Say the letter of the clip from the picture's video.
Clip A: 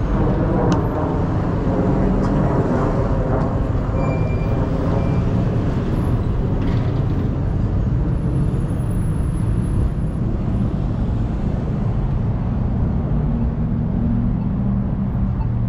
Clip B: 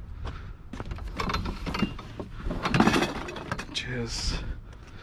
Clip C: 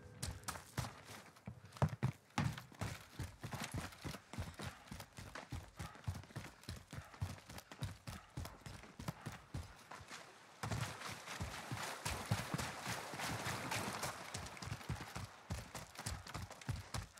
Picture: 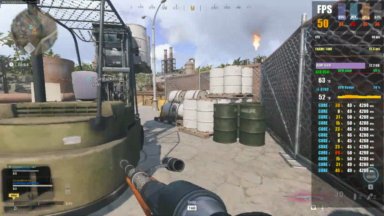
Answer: C